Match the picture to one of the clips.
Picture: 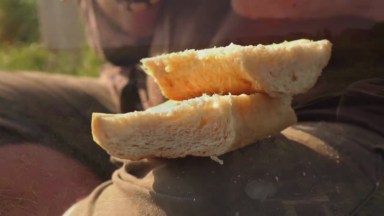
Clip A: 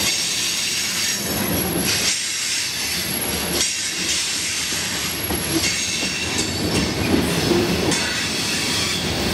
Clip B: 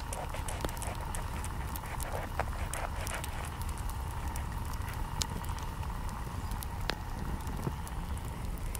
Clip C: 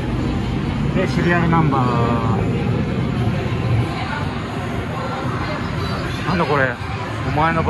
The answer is B